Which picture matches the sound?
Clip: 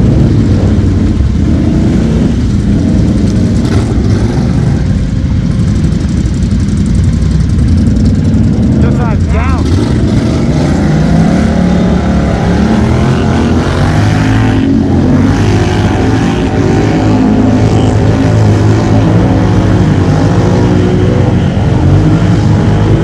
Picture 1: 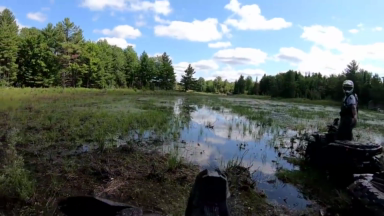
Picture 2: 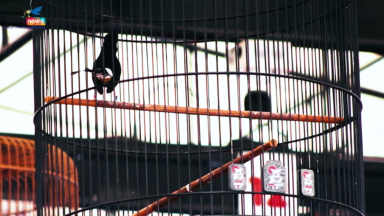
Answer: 1